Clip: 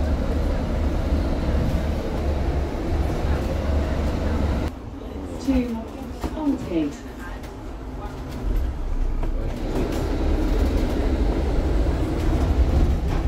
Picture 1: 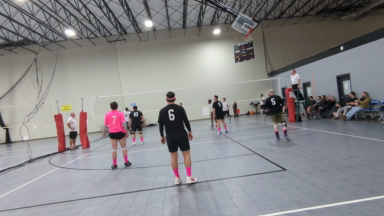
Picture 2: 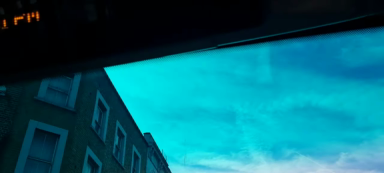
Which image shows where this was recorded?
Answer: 2